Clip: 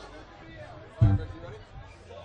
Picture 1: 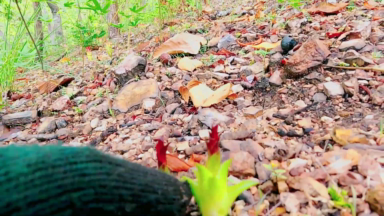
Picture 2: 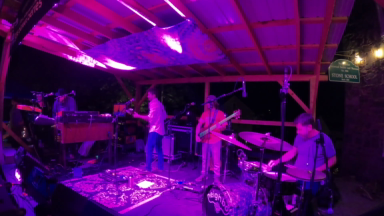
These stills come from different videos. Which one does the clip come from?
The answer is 2